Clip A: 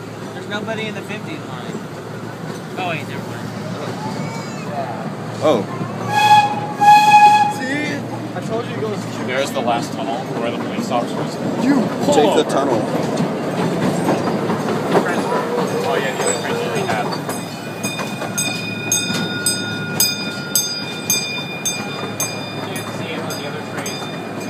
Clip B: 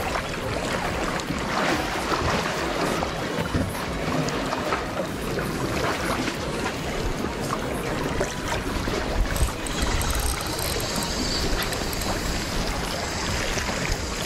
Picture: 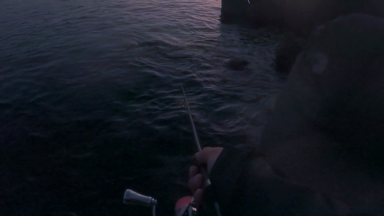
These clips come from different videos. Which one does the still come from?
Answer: B